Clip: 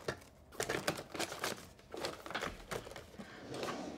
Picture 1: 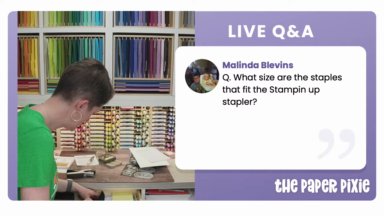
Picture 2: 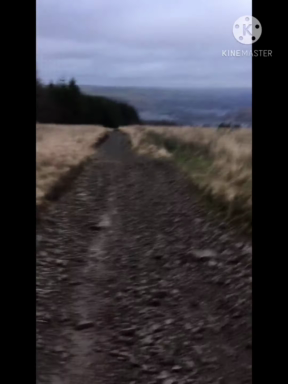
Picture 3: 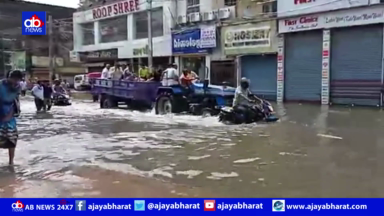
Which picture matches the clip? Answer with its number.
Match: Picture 1